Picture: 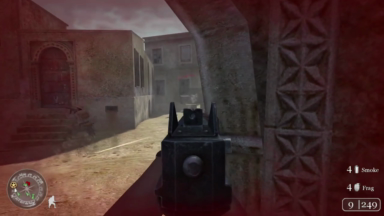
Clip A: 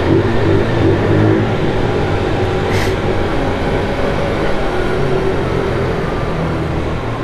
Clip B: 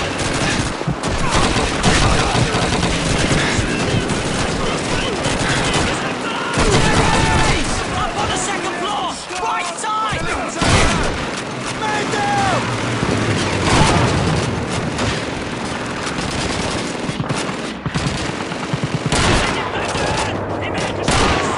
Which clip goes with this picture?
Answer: B